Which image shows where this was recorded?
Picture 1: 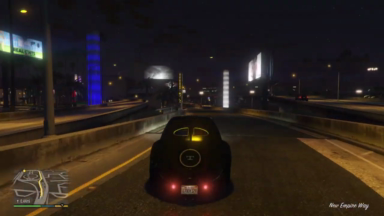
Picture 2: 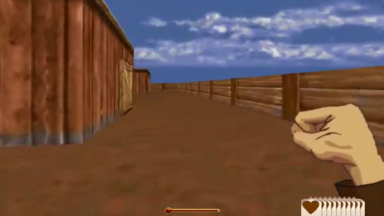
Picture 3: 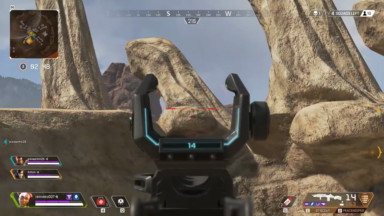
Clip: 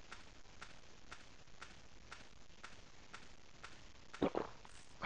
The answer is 2